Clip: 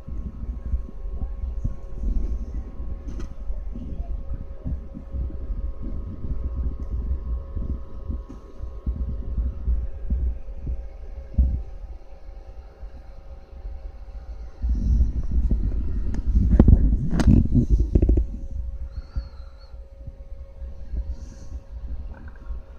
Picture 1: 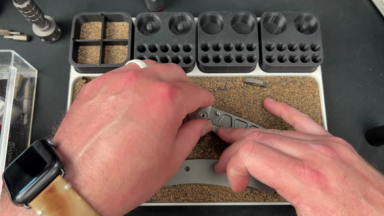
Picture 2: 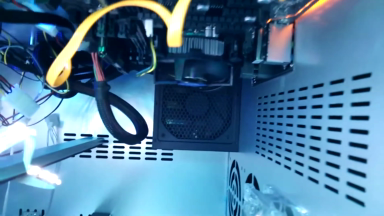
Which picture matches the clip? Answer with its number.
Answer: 2